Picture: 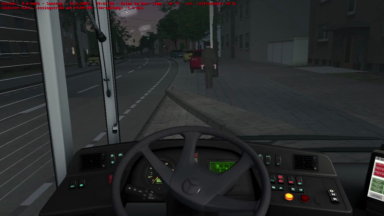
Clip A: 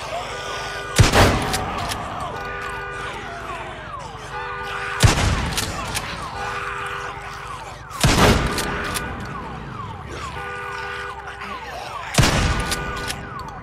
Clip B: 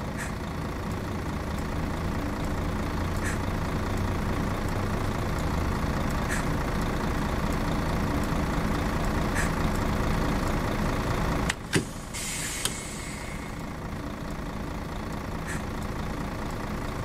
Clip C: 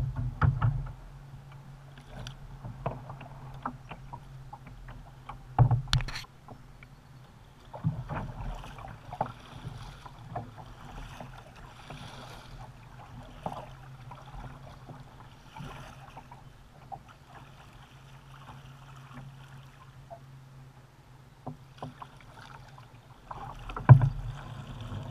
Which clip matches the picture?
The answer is B